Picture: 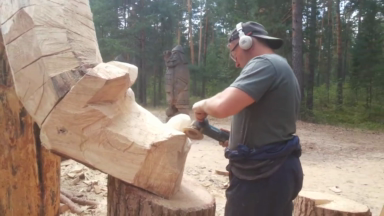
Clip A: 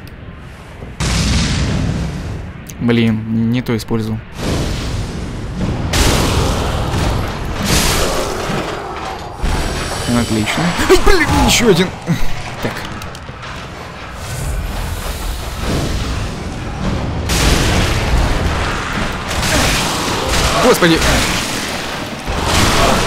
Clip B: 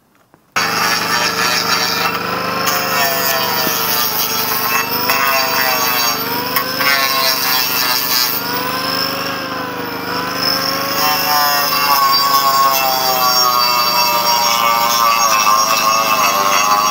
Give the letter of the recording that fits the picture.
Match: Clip B